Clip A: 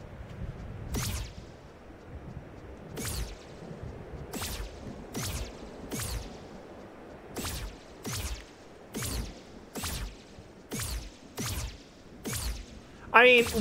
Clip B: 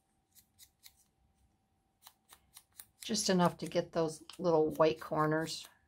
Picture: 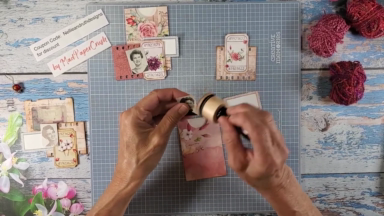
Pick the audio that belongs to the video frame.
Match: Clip B